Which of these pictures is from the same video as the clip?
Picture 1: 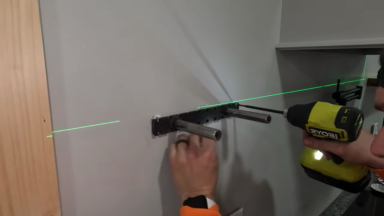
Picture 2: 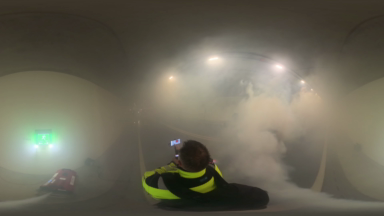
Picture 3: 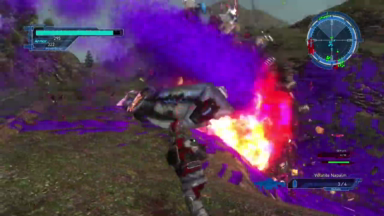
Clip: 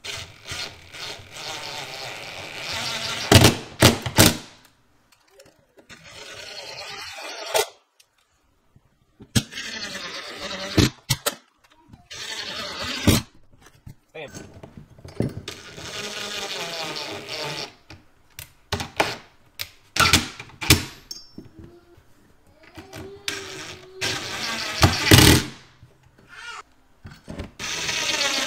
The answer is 1